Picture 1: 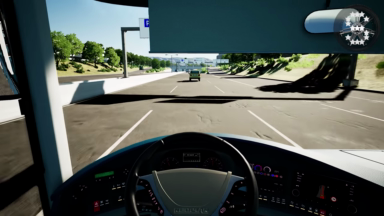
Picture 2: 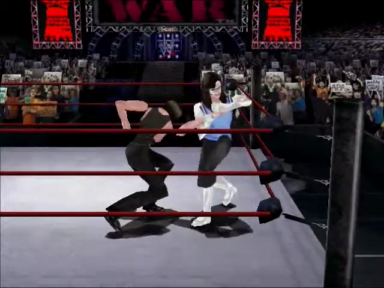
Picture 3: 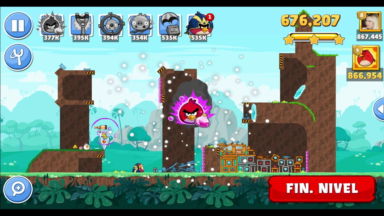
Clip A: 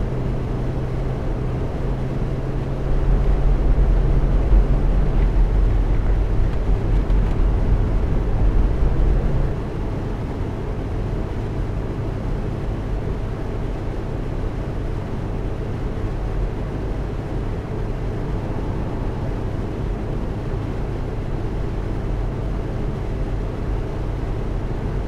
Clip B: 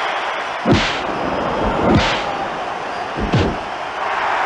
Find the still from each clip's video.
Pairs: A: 1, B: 2